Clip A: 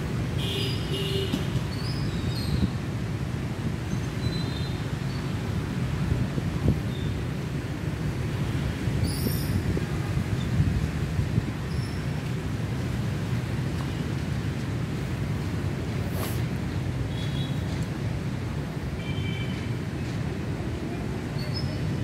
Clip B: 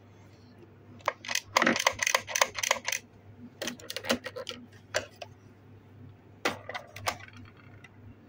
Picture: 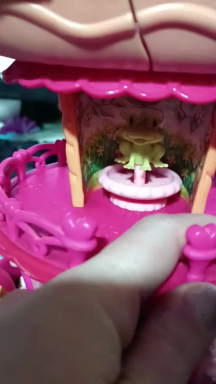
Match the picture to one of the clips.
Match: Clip B